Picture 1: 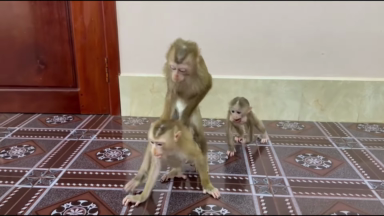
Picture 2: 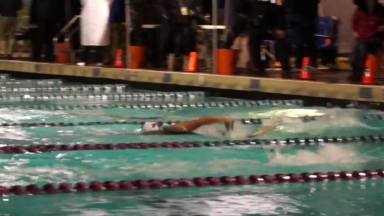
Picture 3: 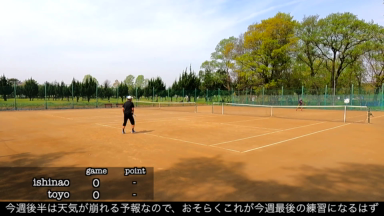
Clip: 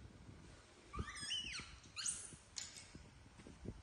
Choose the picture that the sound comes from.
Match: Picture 1